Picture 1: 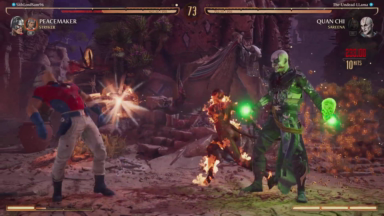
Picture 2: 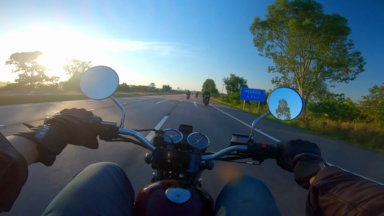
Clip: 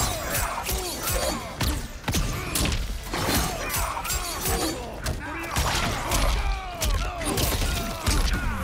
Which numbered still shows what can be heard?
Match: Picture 1